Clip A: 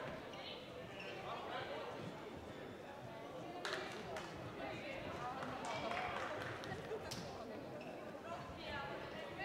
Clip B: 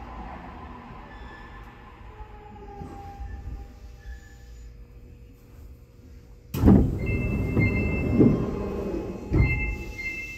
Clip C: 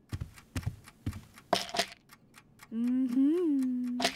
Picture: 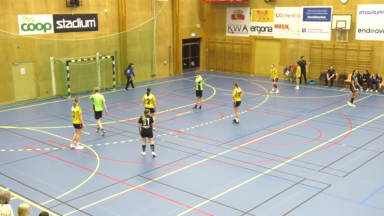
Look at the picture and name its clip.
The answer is A